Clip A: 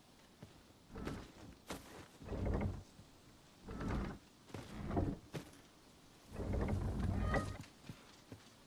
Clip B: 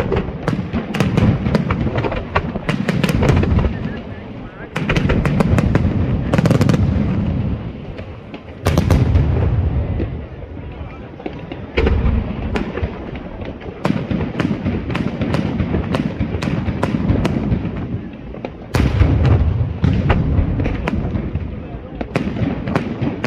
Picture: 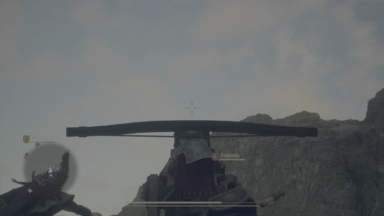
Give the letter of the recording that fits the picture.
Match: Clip A